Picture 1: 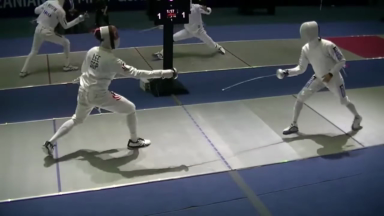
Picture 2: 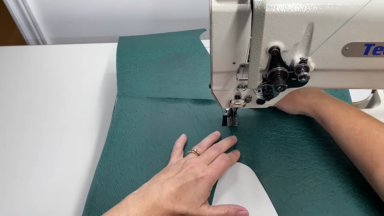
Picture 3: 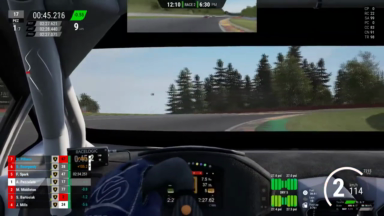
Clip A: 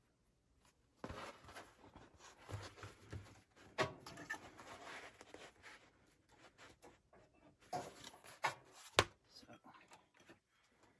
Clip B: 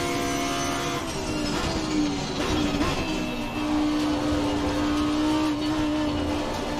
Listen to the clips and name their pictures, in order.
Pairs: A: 2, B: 3